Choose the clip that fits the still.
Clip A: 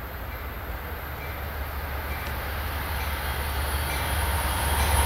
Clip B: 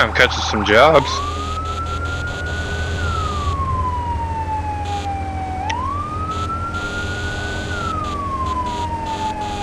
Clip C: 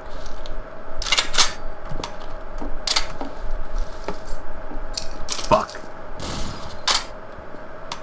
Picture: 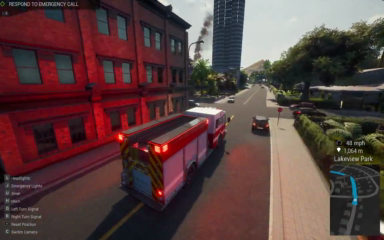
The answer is B